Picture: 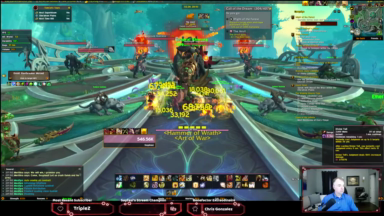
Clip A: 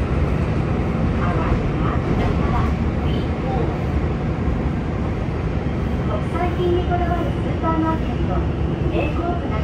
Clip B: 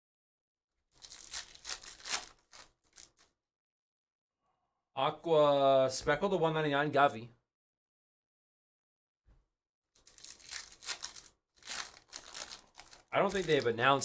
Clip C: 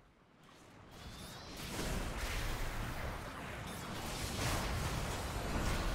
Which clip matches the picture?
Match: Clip C